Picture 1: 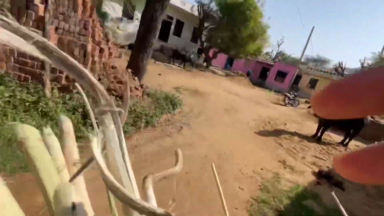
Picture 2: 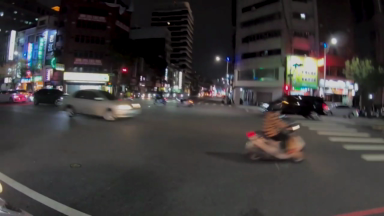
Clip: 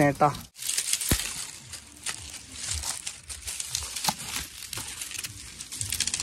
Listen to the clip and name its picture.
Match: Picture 1